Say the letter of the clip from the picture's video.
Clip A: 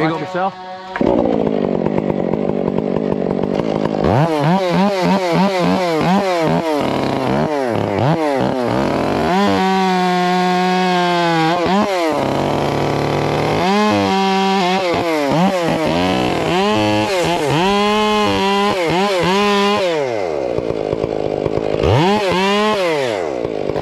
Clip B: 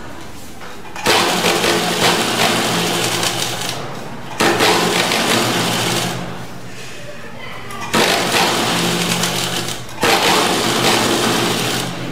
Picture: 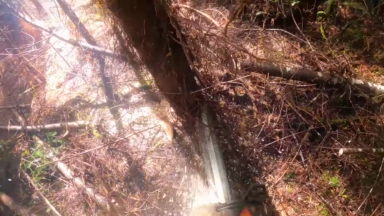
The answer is A